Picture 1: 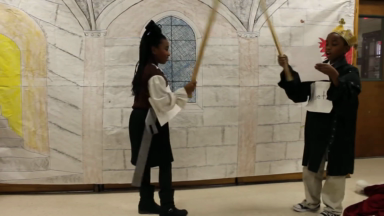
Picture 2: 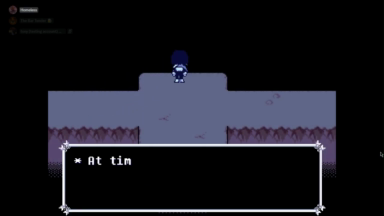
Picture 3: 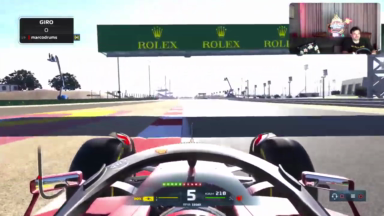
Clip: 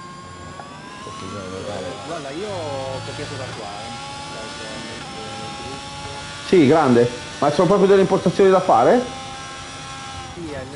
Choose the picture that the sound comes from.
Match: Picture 3